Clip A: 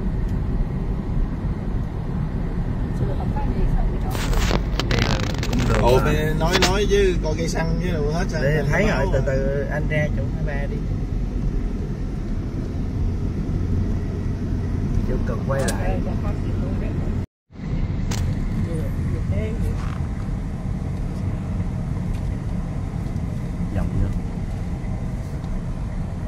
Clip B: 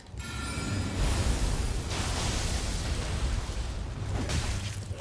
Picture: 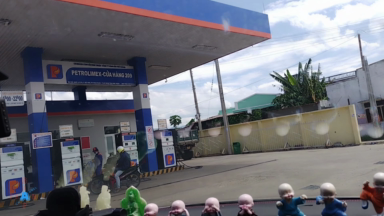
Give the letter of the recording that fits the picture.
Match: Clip A